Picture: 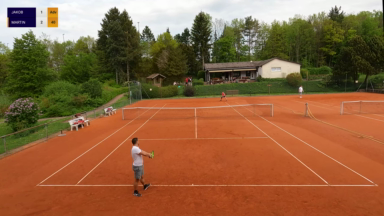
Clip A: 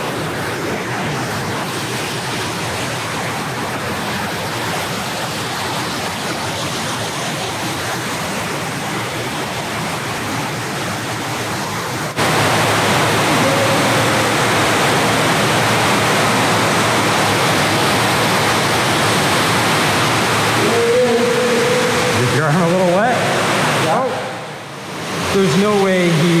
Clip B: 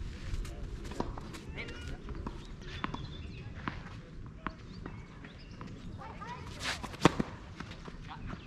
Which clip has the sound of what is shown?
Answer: B